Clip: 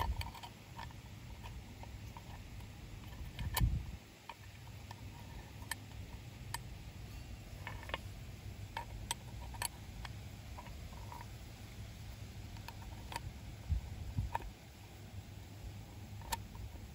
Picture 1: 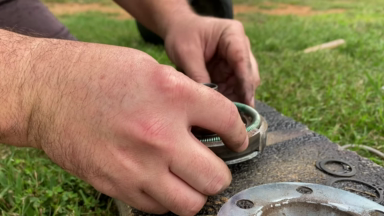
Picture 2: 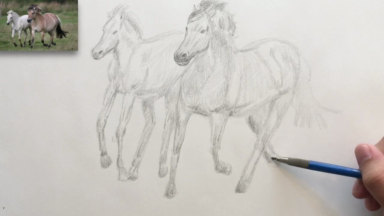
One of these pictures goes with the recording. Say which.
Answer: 1